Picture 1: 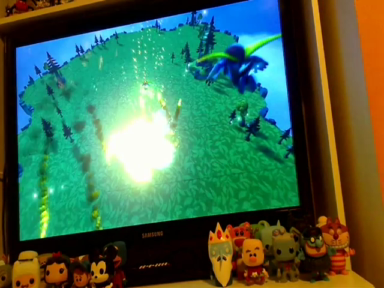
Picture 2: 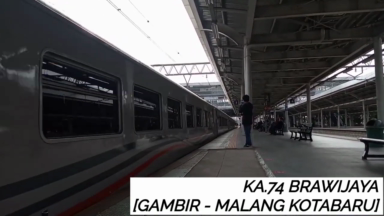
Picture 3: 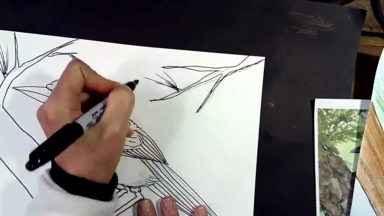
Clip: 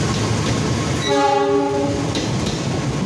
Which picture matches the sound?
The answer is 2